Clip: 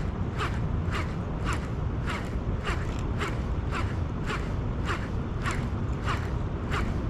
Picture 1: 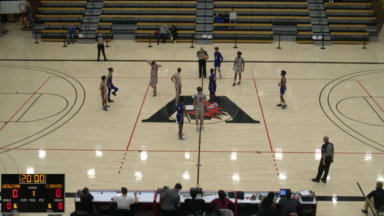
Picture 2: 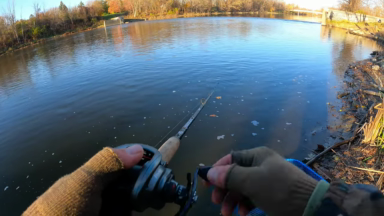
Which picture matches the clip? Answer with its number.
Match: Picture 2